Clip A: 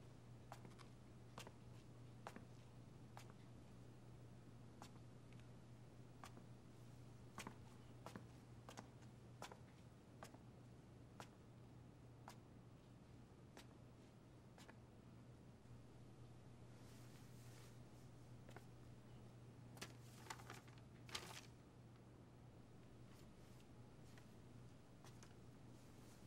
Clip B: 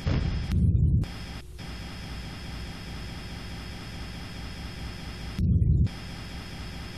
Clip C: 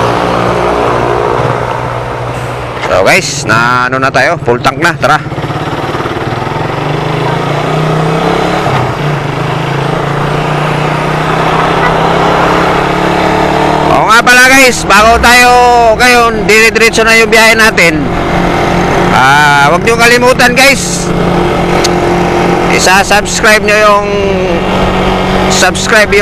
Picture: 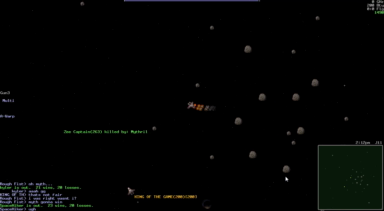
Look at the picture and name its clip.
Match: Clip B